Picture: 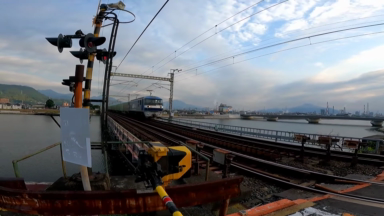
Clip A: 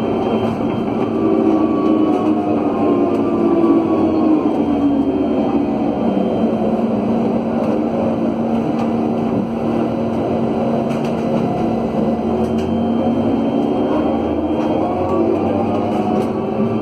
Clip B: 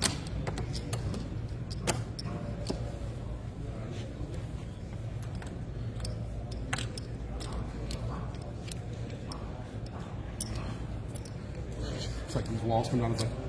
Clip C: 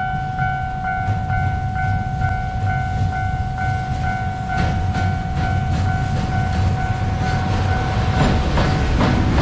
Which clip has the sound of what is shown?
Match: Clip C